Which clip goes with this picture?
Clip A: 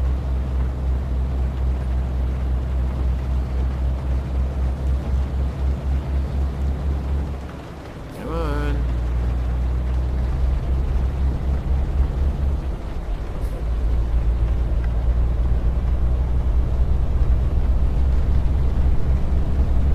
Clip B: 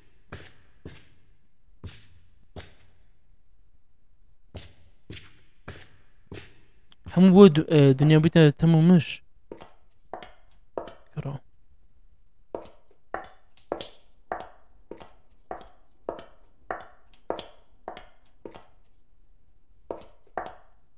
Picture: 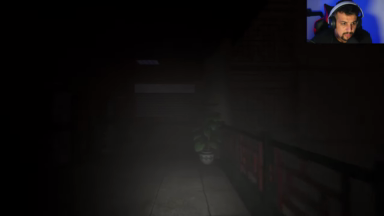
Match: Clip B